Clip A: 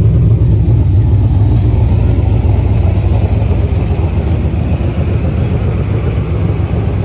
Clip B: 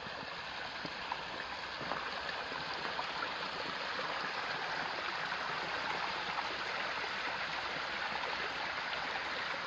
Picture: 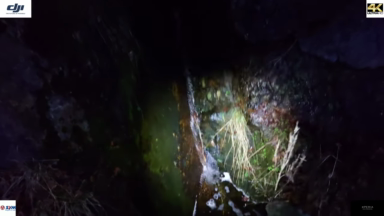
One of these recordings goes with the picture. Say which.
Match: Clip B